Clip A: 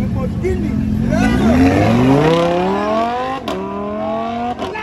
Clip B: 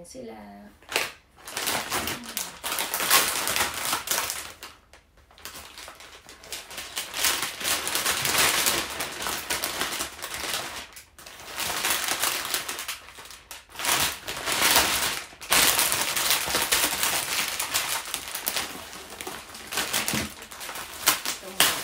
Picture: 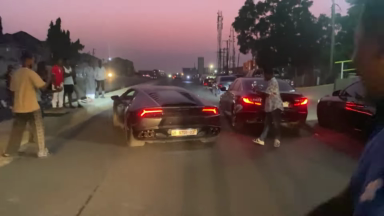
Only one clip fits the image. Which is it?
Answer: A